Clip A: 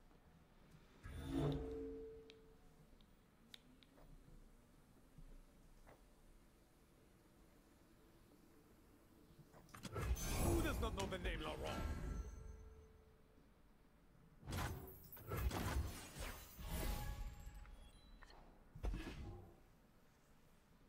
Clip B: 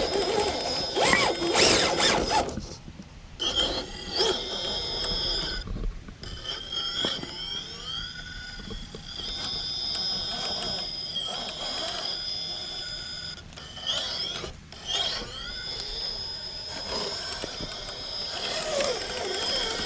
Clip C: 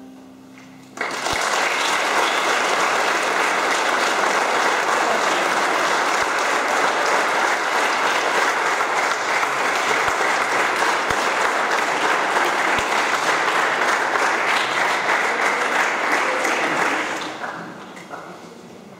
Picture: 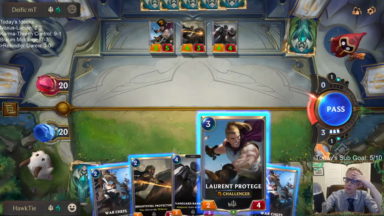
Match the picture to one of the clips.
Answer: A